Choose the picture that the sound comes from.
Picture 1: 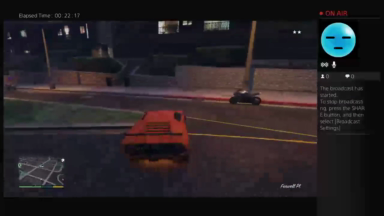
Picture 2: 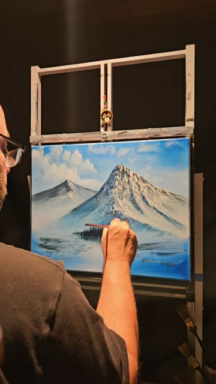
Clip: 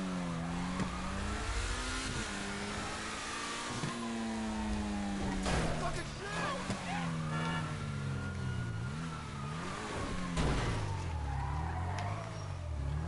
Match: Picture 1